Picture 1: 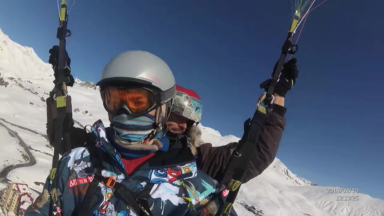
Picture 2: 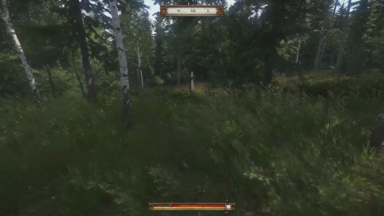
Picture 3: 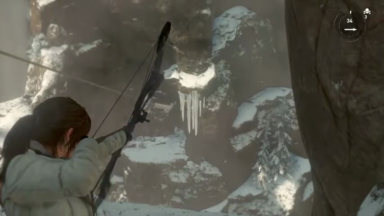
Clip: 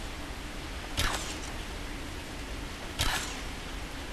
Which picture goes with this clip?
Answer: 3